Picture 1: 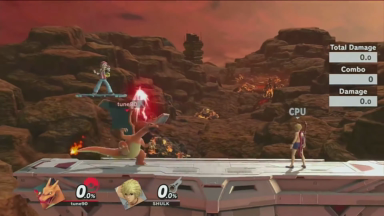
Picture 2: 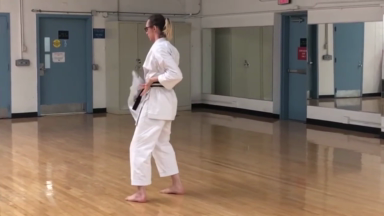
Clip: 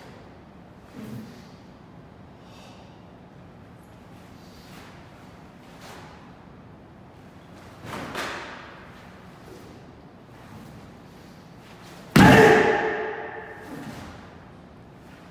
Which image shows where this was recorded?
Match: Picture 2